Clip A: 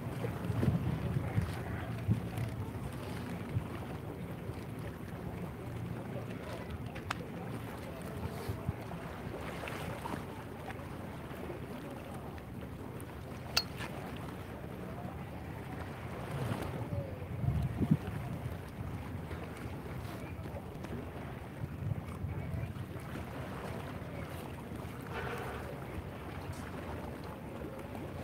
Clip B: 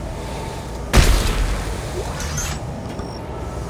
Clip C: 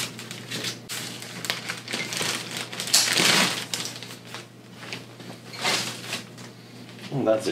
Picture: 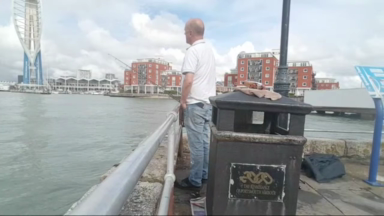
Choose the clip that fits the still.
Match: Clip A